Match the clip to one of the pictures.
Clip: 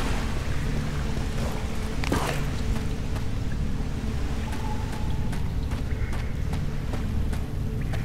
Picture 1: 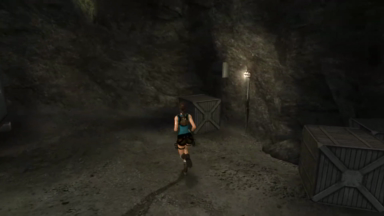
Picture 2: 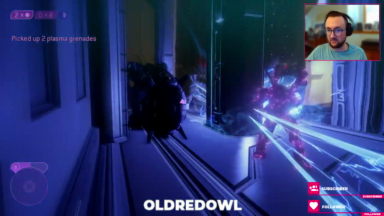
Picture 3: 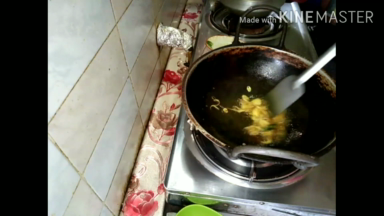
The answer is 1